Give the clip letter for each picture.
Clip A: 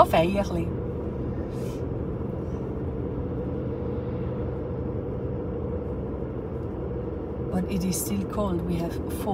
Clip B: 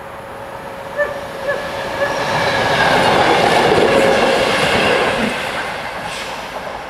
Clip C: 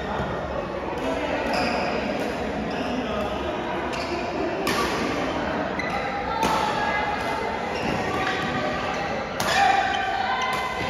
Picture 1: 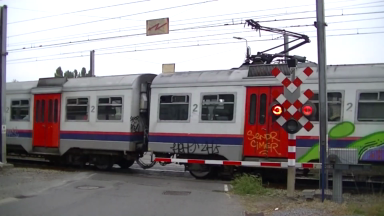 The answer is B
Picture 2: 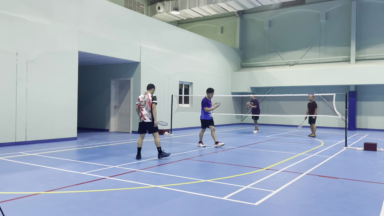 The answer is C